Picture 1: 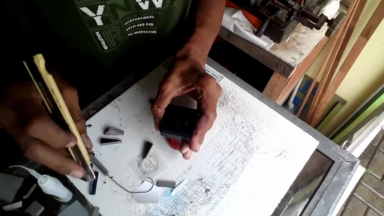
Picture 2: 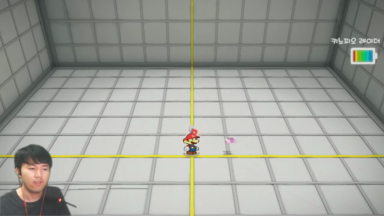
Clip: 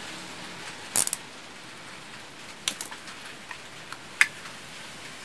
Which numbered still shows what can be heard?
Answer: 1